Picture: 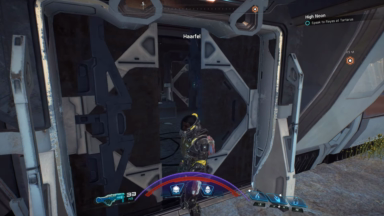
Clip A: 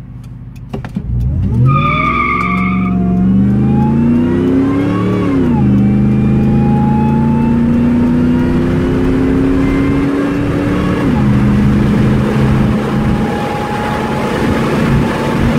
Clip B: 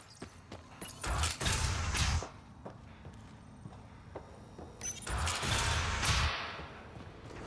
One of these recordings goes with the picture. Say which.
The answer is B